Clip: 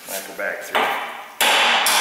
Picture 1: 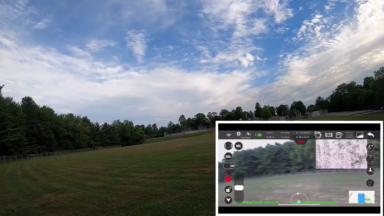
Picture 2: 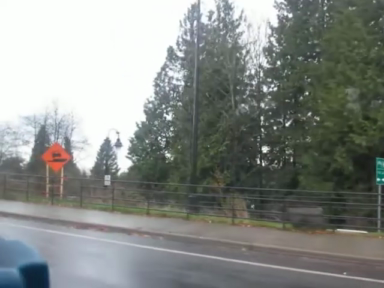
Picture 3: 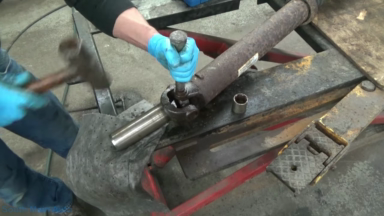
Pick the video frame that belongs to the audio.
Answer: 3